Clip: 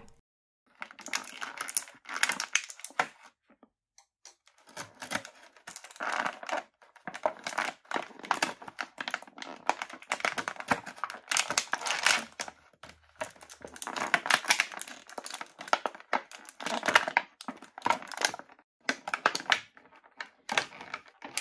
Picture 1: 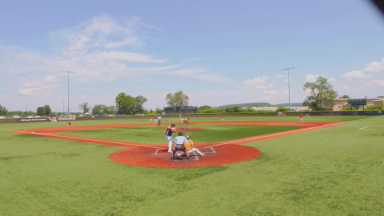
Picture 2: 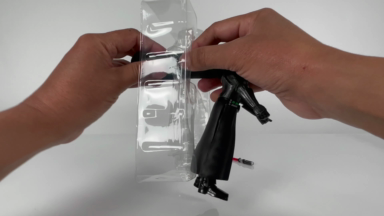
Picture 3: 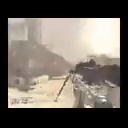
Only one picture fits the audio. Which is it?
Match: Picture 2